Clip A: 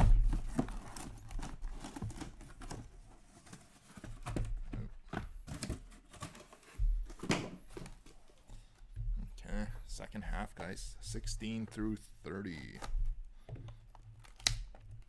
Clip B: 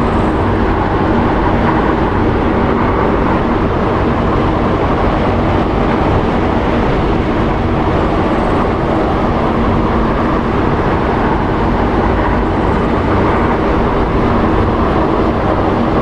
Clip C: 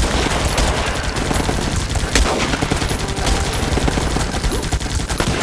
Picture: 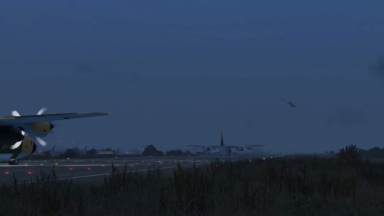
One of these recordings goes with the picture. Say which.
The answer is B